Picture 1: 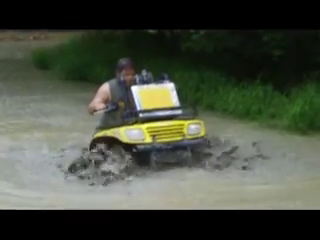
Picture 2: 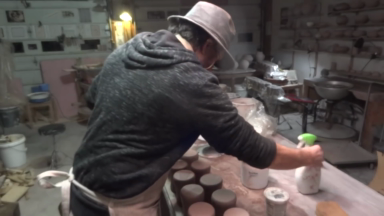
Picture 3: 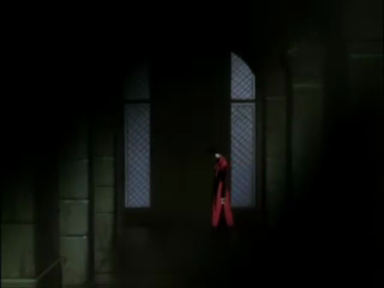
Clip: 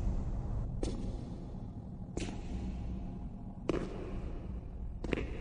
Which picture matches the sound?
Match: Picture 3